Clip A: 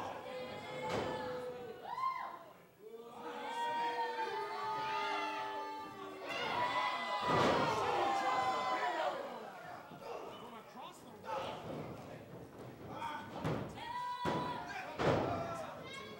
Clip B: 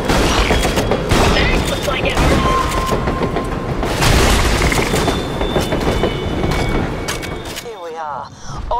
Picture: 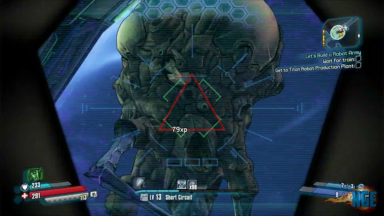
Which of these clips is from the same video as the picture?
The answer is B